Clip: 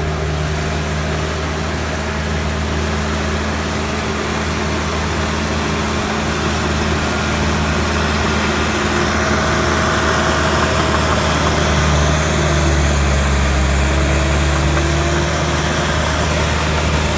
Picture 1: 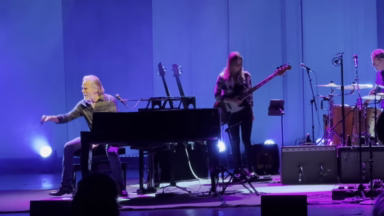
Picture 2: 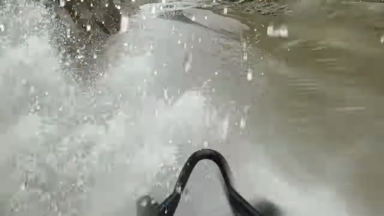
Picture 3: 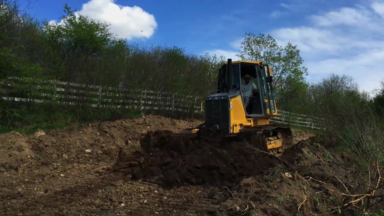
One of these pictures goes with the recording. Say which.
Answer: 3